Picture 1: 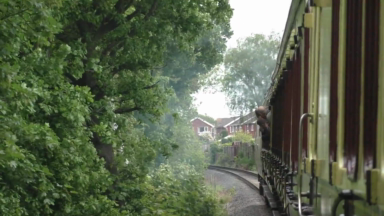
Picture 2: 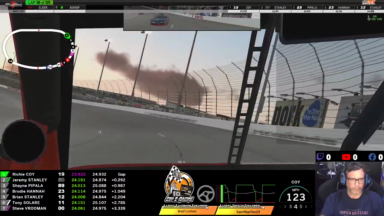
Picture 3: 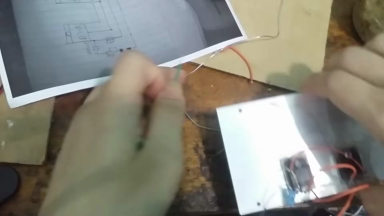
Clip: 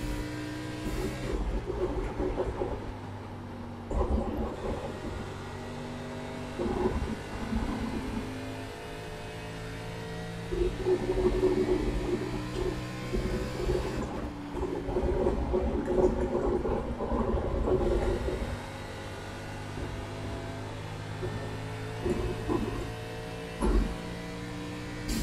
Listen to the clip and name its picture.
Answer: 2